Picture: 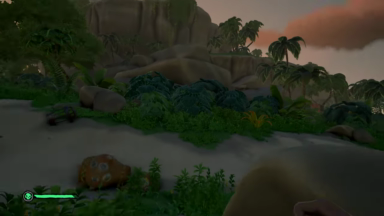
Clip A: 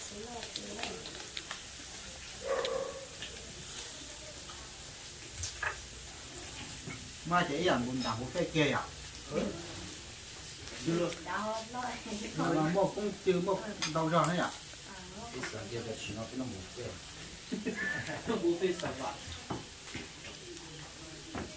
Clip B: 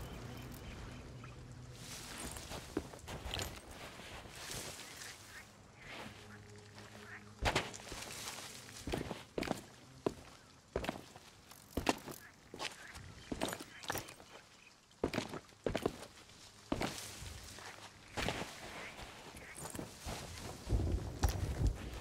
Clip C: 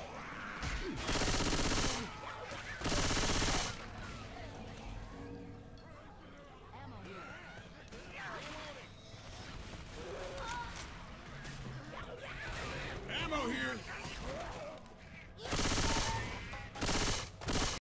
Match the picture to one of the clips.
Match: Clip B